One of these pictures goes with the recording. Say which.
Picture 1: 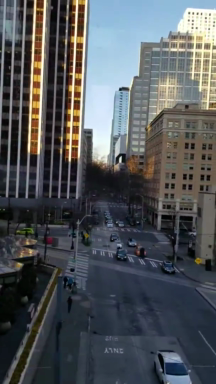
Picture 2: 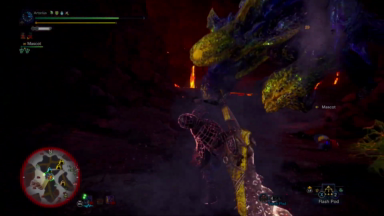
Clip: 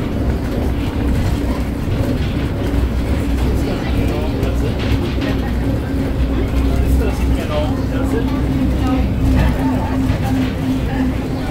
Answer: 1